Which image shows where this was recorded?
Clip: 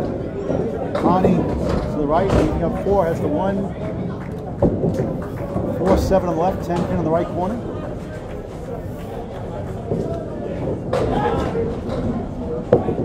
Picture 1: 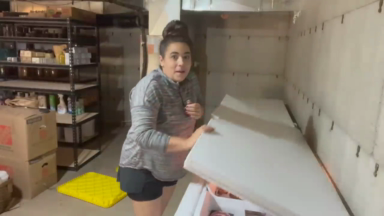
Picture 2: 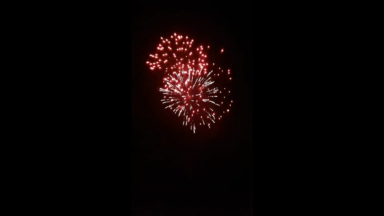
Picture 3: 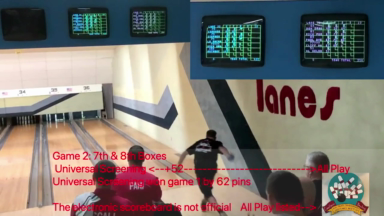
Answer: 3